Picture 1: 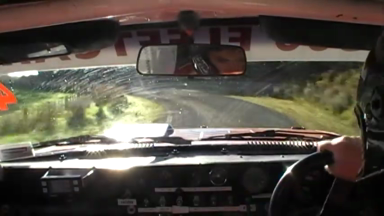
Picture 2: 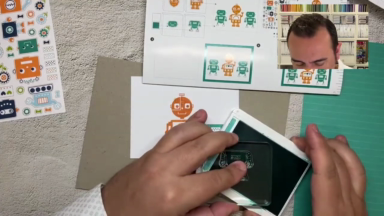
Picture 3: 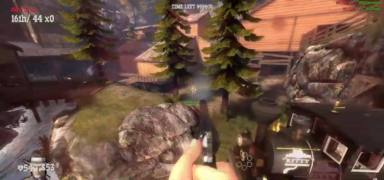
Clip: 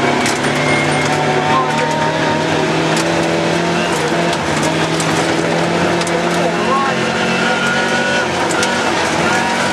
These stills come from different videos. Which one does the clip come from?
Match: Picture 1